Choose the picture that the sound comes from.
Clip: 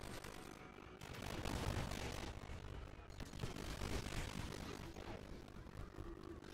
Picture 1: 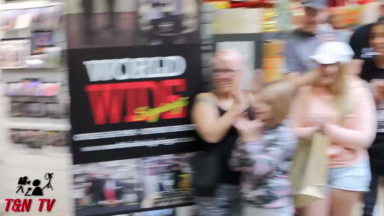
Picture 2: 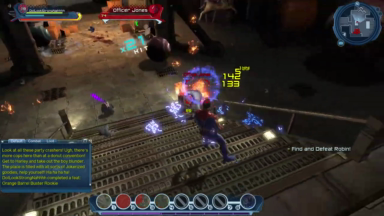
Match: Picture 2